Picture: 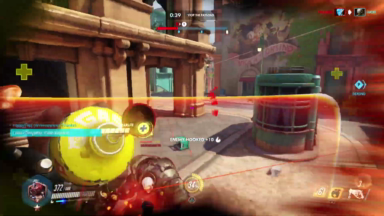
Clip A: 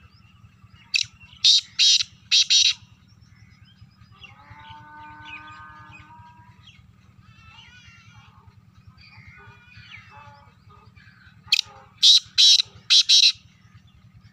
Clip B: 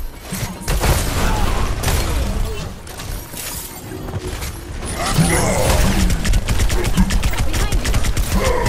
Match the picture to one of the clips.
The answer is B